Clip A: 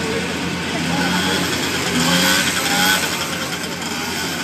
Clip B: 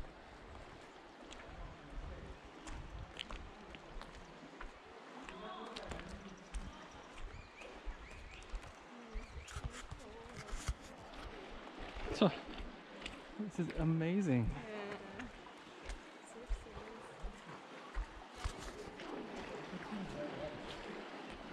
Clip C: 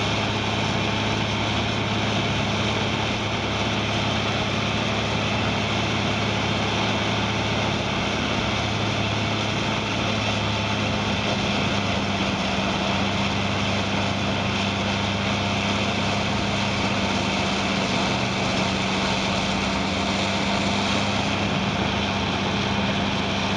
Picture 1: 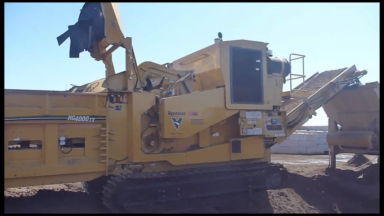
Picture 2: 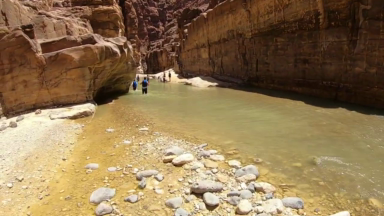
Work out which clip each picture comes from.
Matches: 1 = C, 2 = B